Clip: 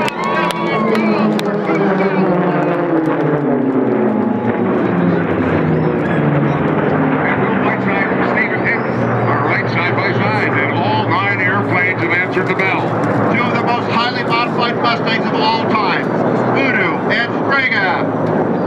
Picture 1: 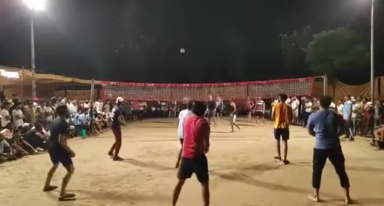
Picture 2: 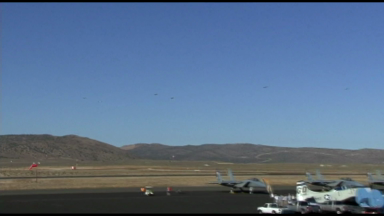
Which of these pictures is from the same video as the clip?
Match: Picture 2